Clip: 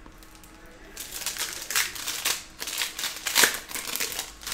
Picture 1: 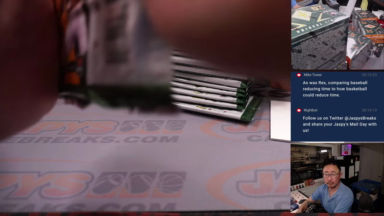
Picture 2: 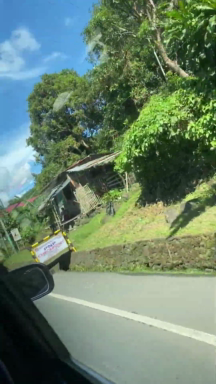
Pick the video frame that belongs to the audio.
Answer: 1